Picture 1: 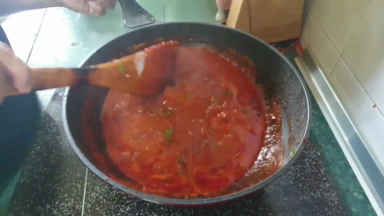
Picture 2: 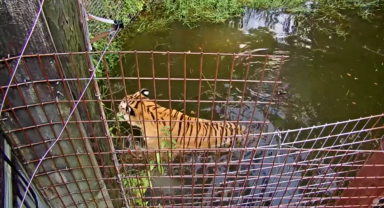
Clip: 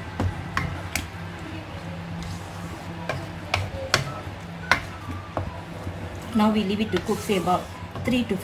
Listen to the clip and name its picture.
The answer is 1